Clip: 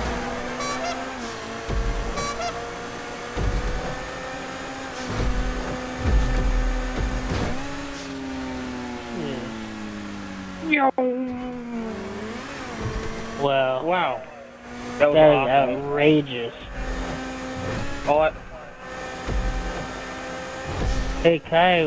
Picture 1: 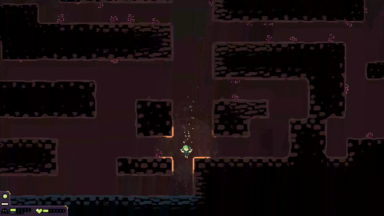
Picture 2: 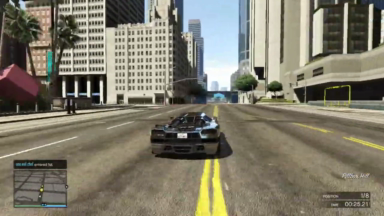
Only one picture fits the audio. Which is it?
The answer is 2